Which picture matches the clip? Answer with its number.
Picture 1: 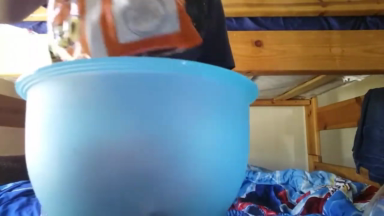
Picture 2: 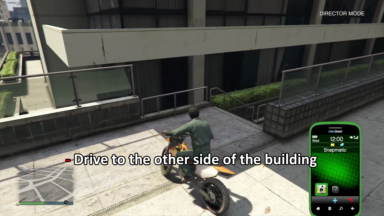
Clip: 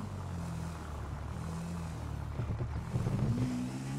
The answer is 2